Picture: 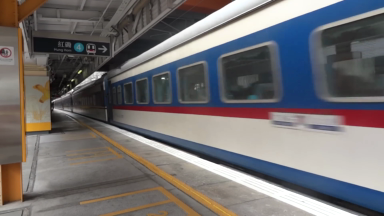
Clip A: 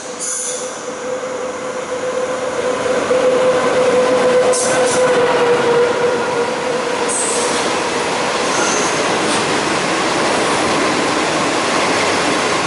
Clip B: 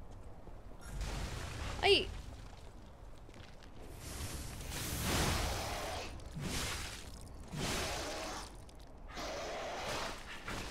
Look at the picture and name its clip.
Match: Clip A